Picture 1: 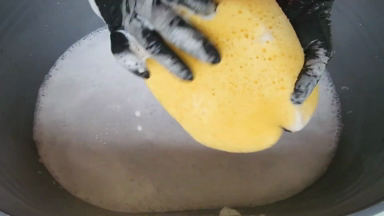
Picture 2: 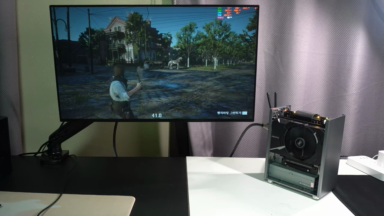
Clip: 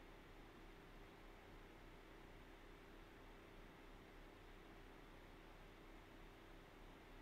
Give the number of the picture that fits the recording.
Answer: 2